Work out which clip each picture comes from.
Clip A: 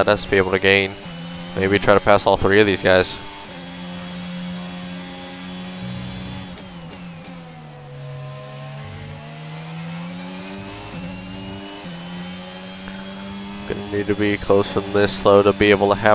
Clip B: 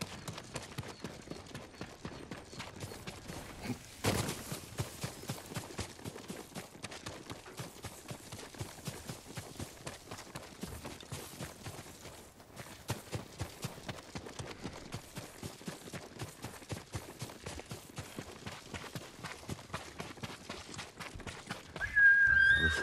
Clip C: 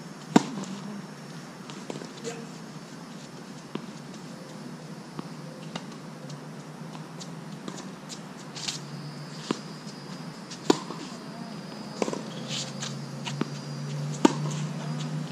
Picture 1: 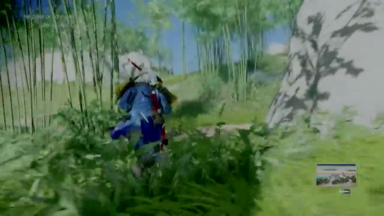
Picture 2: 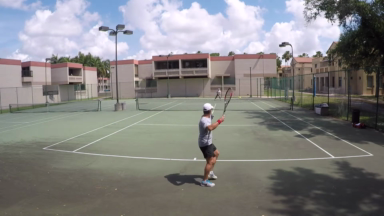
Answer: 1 B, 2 C